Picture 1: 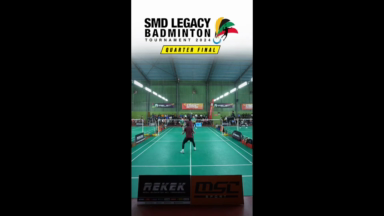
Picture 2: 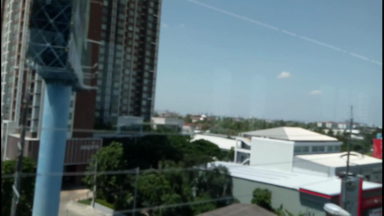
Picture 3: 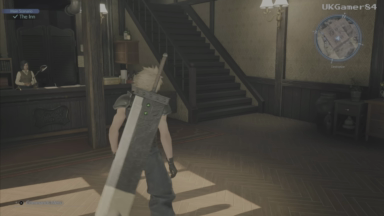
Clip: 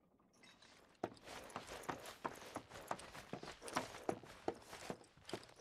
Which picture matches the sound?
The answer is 3